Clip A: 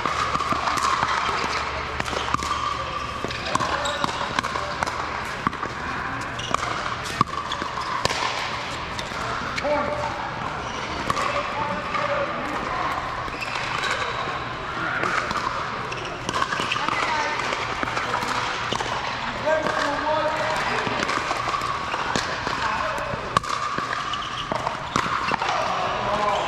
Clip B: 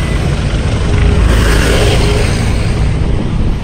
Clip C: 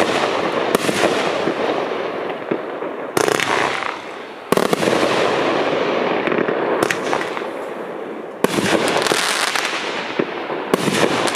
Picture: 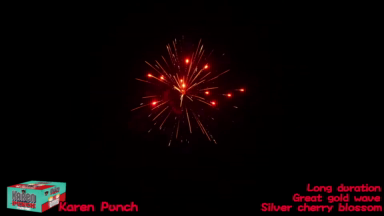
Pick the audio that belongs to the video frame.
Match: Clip C